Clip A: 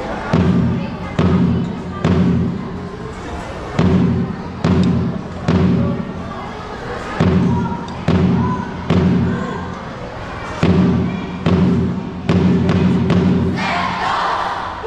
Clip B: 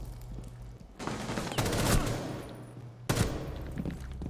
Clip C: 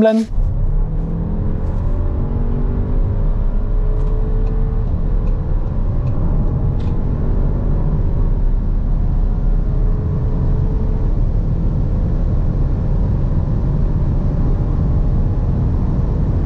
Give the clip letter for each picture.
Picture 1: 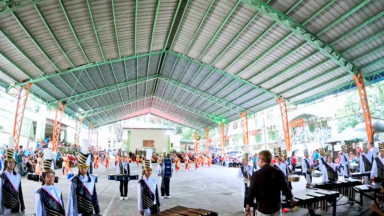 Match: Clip A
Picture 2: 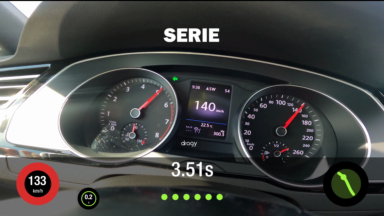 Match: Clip C